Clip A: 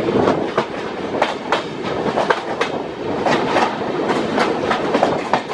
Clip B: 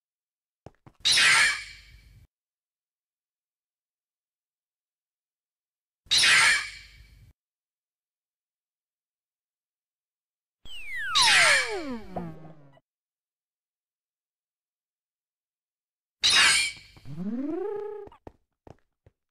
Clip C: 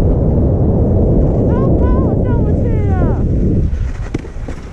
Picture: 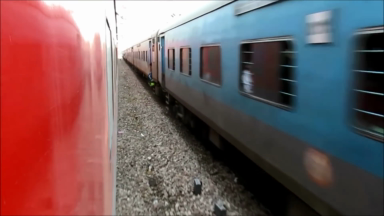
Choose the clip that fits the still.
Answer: A